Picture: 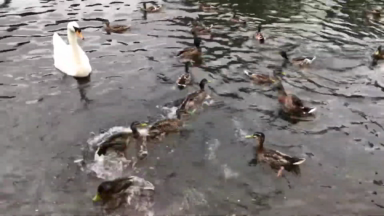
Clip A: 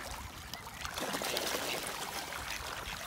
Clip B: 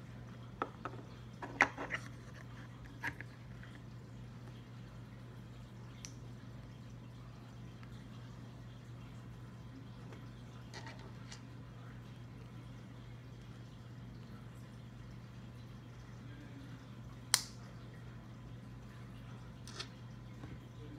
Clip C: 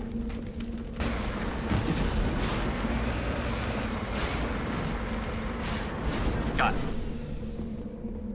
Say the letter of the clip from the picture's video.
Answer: A